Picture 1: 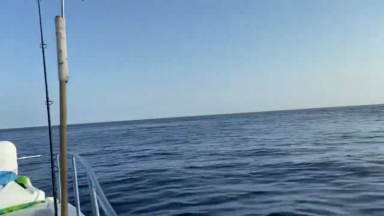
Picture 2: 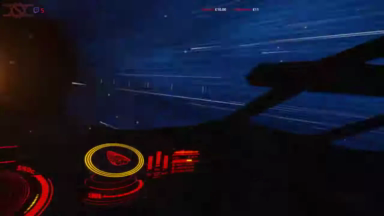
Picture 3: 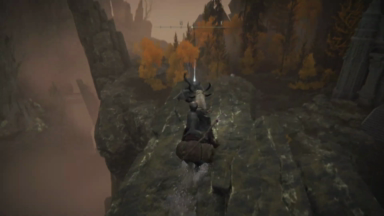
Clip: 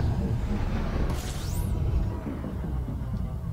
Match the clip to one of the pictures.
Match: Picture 2